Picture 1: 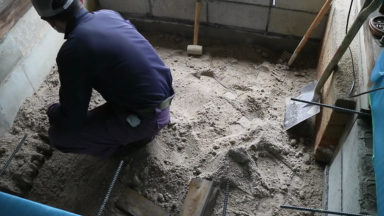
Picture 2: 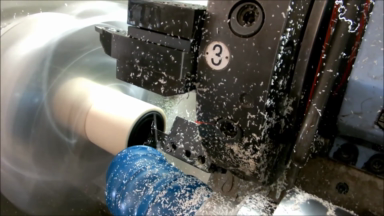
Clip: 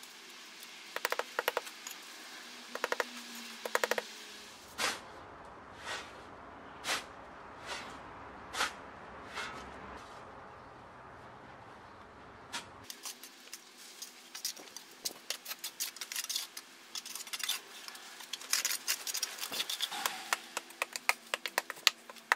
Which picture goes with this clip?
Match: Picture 1